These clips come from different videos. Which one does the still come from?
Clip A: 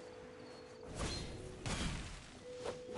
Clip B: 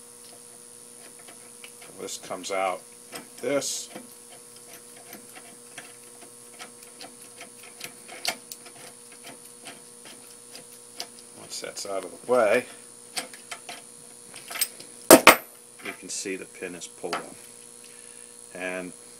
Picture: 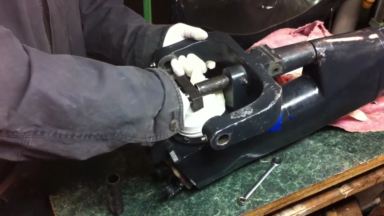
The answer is B